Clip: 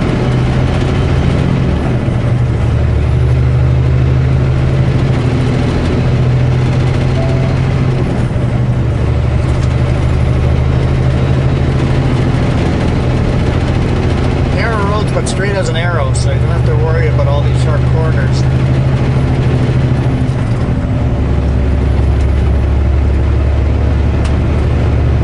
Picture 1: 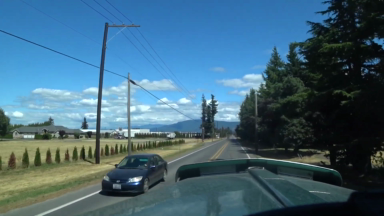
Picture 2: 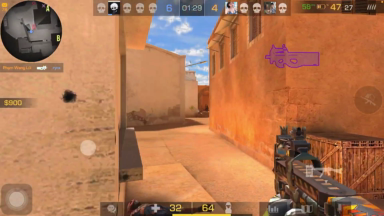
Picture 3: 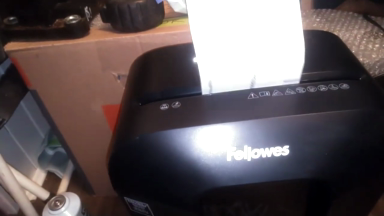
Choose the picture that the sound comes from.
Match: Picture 1